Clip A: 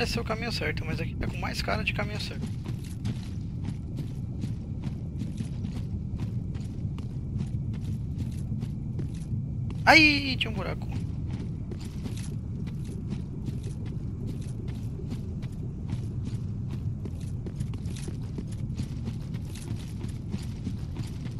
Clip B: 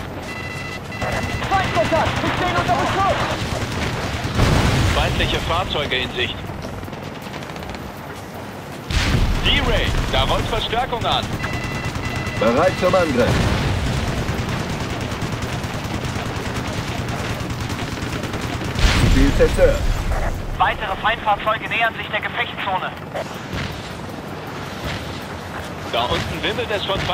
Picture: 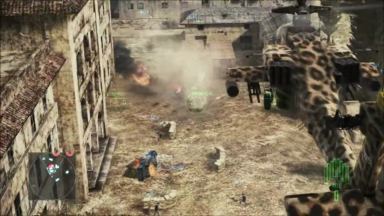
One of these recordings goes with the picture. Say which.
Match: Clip B